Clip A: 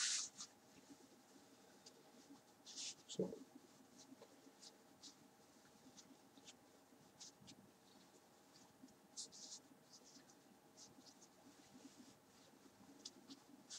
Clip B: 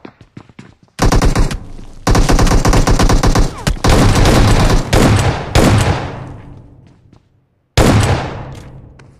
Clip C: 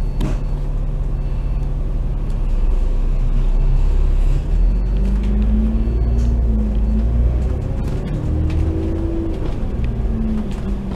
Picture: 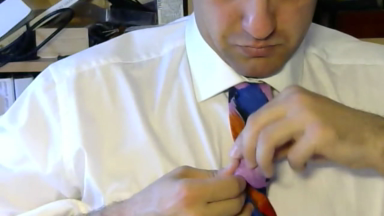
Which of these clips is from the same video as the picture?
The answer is A